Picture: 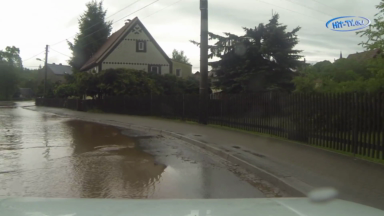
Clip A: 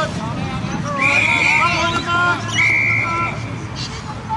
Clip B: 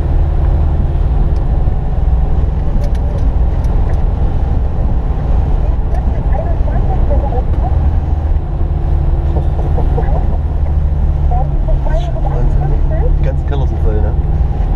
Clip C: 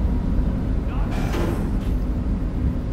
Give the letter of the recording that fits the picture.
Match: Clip B